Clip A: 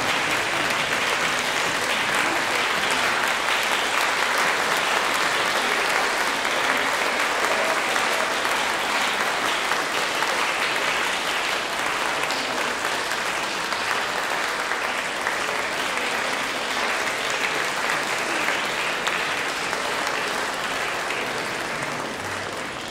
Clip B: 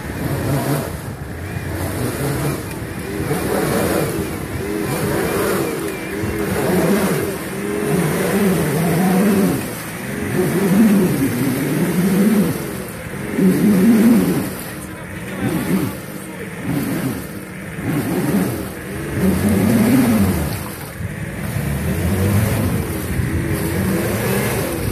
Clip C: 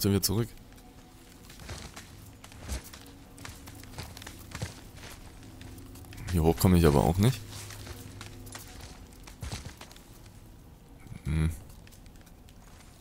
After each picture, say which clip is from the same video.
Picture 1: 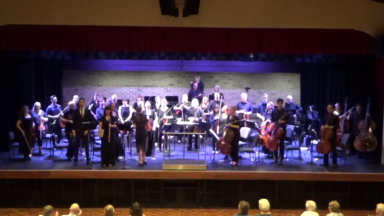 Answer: A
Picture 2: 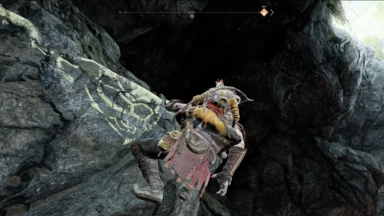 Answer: C